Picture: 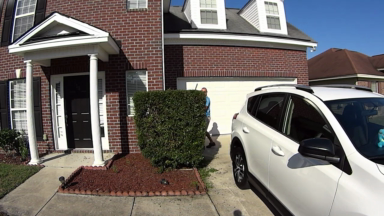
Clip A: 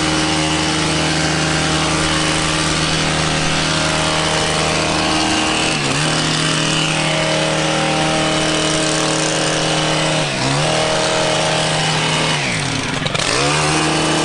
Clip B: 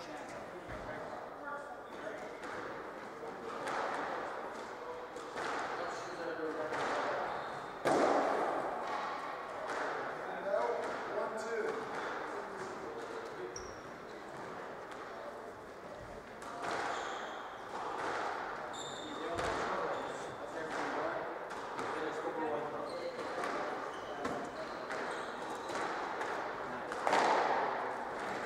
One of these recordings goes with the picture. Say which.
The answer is A